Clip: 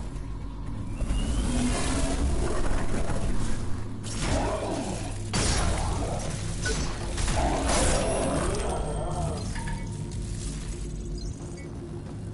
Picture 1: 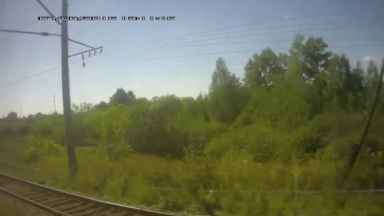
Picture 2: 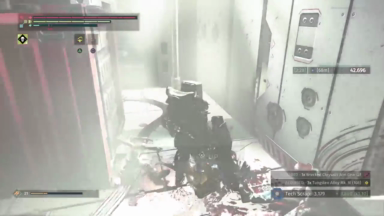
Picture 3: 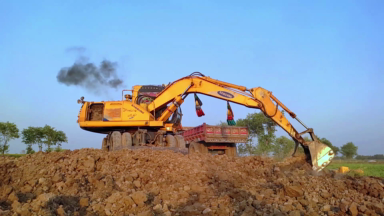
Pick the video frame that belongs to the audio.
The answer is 2